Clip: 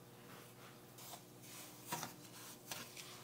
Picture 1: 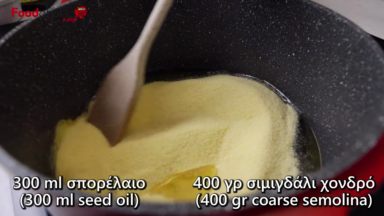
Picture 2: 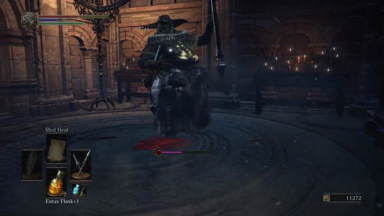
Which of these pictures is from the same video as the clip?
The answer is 1